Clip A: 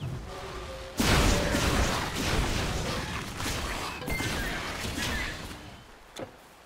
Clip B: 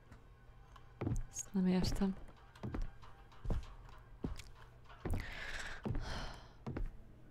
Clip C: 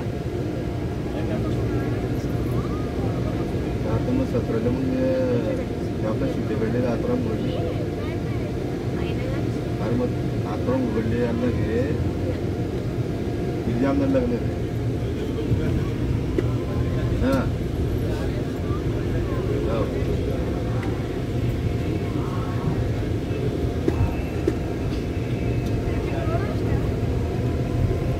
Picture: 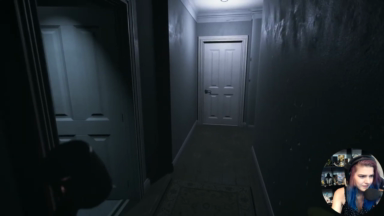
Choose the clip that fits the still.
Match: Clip B